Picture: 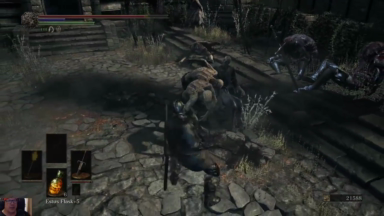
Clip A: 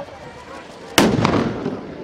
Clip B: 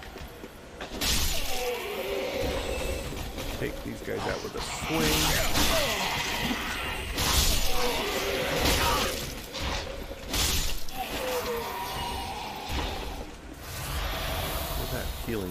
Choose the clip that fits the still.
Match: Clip B